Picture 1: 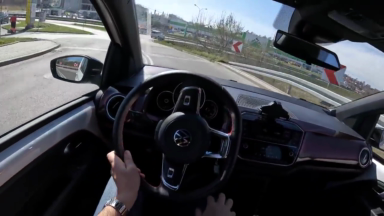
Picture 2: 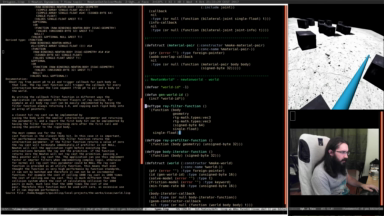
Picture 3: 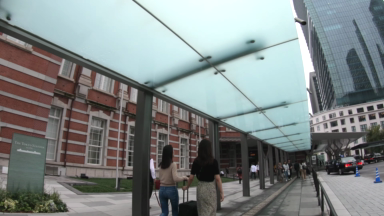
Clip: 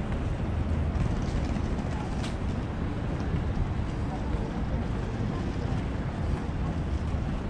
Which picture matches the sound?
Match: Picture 3